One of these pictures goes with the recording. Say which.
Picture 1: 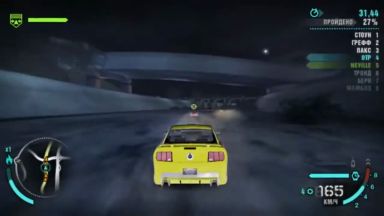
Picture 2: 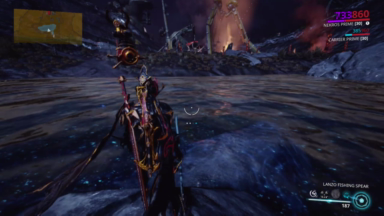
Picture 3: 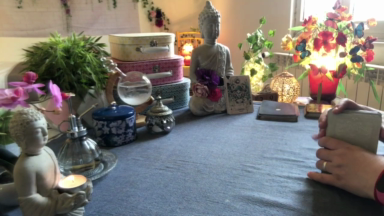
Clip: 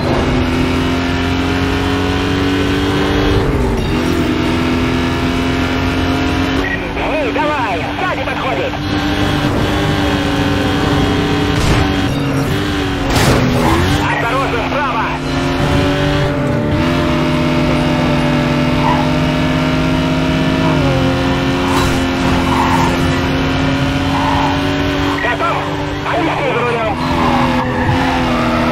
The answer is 1